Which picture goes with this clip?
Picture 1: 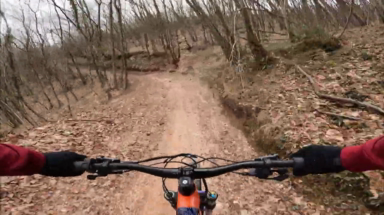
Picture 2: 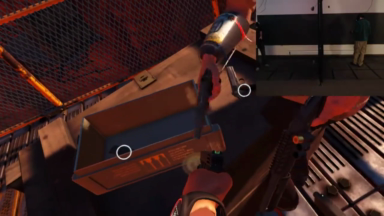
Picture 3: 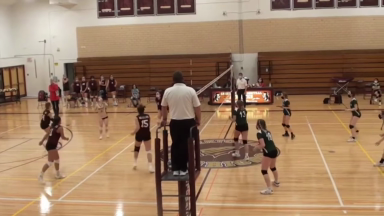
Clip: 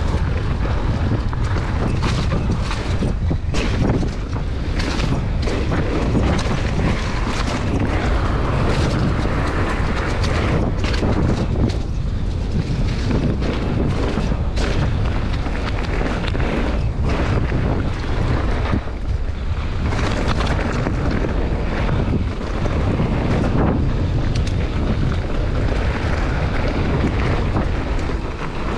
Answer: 1